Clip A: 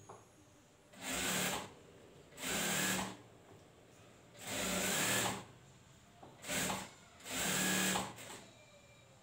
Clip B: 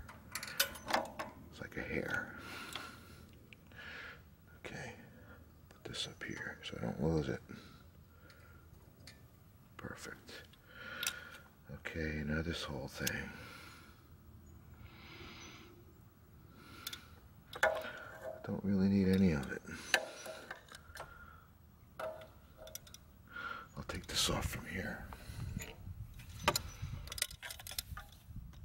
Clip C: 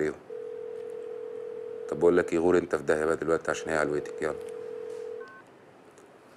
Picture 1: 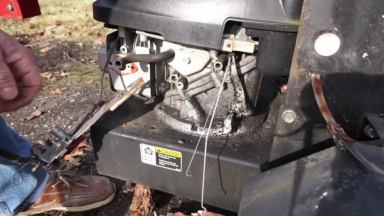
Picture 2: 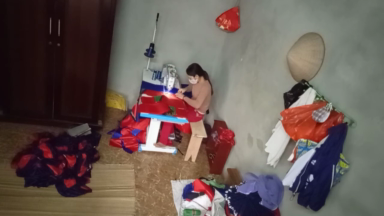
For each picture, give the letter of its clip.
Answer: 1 B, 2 A